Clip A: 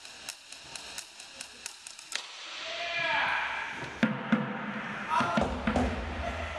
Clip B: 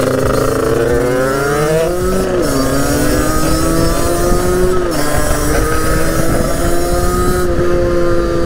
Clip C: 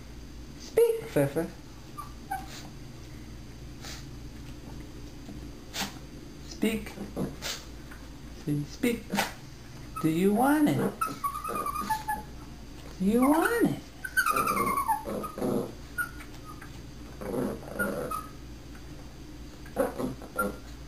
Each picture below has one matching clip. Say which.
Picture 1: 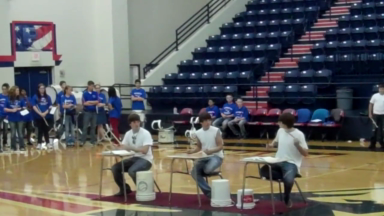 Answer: A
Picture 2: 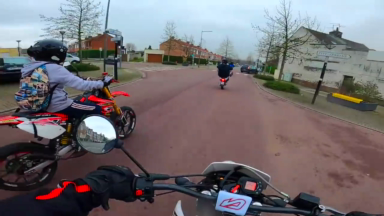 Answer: B